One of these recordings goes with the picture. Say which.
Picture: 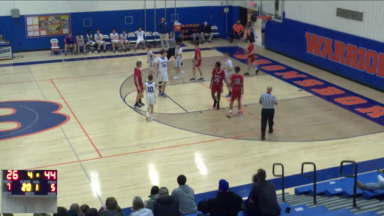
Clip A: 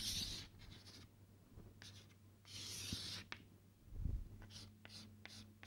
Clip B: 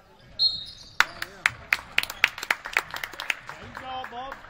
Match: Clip B